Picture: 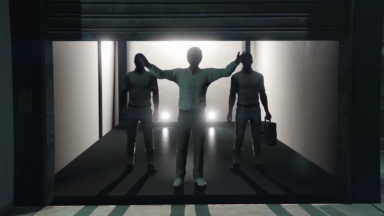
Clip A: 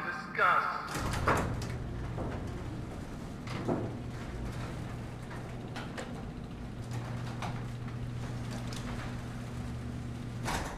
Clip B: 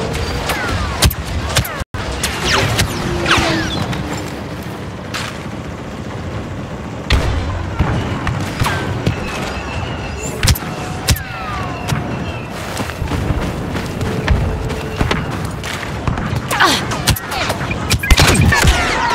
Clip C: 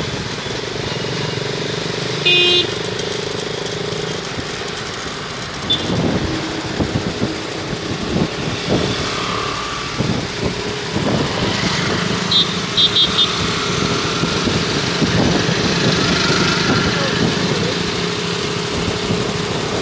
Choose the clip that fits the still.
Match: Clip A